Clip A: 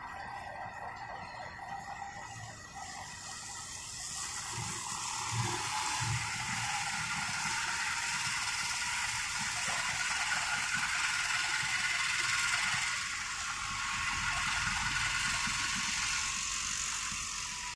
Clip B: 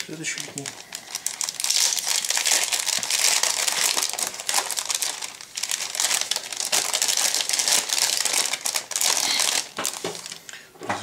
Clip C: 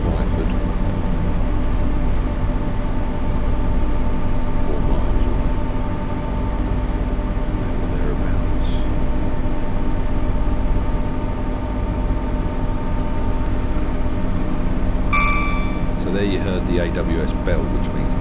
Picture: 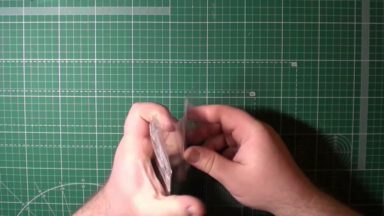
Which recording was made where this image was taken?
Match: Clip B